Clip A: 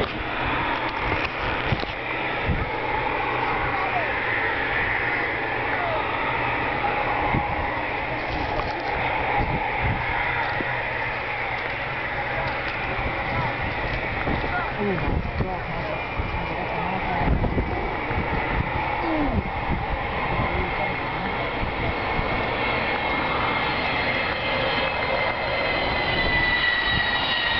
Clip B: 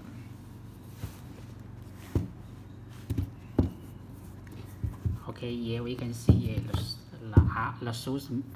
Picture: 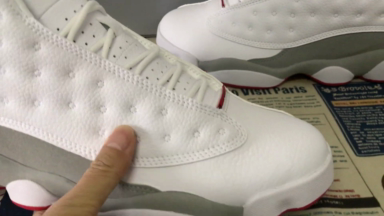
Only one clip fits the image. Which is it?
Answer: B